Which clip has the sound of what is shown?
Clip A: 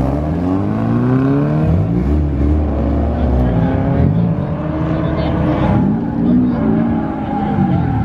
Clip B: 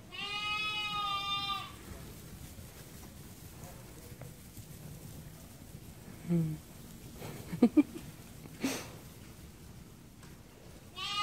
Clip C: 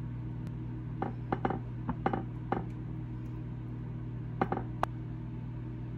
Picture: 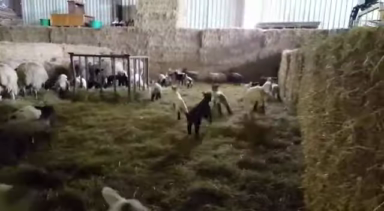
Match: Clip B